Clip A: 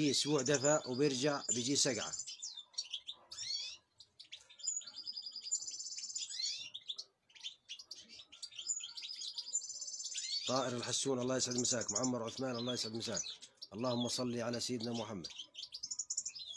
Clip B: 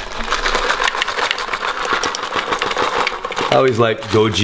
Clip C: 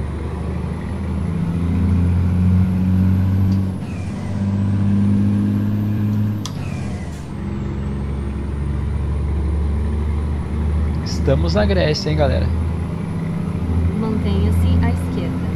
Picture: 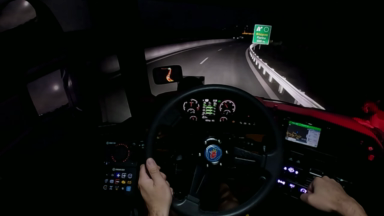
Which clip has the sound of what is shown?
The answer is C